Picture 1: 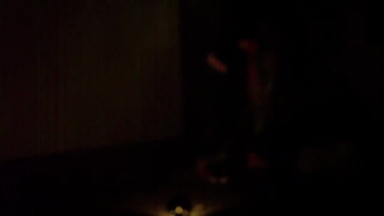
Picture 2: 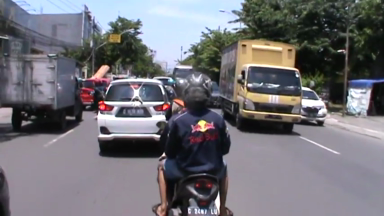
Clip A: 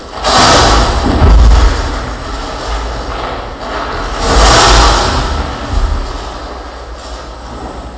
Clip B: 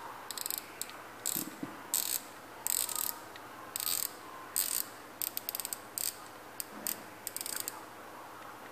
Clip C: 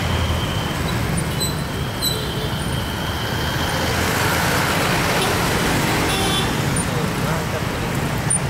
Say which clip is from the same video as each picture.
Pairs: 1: A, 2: C